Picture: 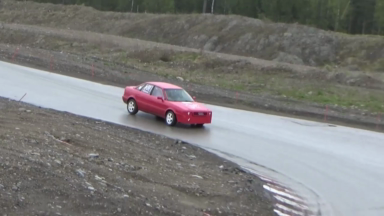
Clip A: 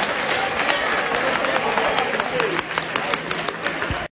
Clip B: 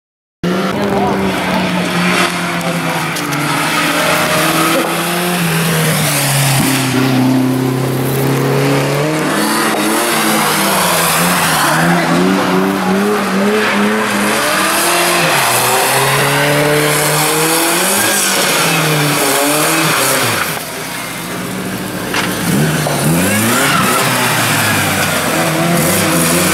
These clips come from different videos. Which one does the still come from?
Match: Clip B